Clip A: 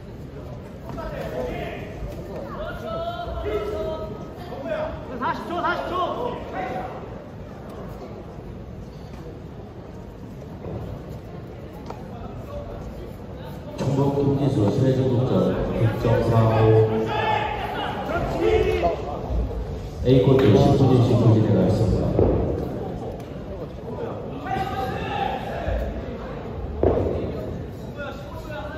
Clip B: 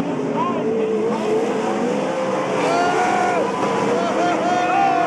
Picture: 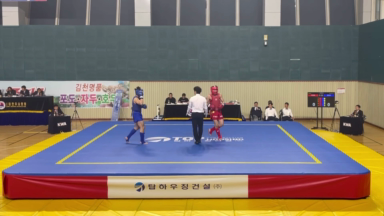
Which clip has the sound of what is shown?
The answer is A